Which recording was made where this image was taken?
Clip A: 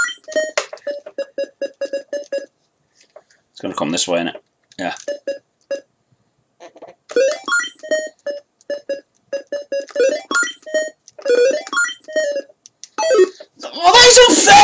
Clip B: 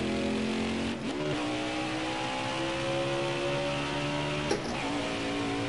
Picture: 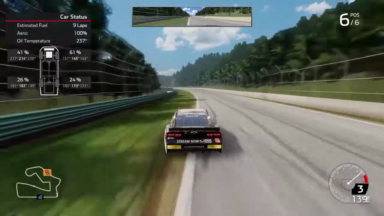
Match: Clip B